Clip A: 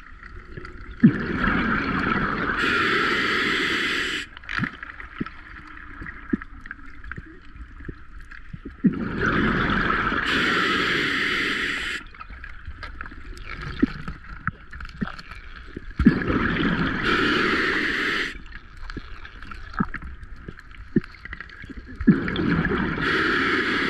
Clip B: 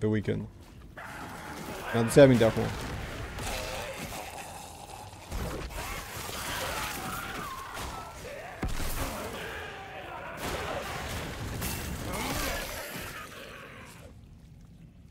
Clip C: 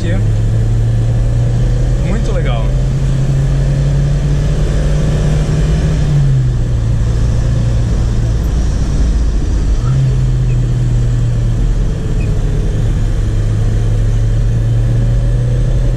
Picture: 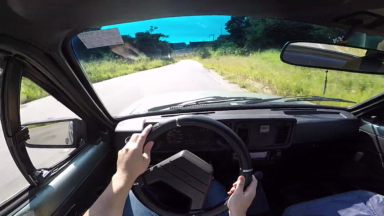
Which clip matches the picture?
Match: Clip C